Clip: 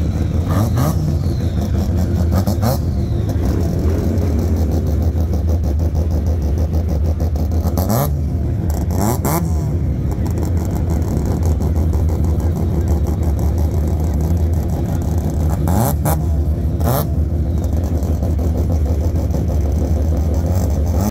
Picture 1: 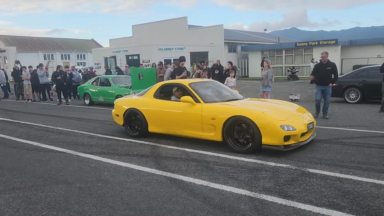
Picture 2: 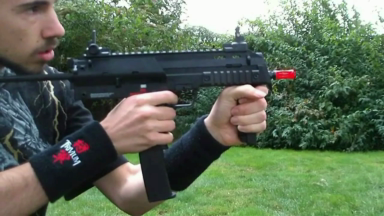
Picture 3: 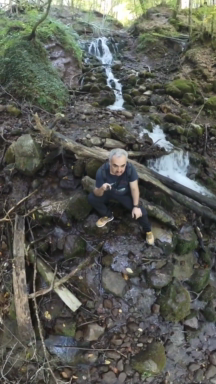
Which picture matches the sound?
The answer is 1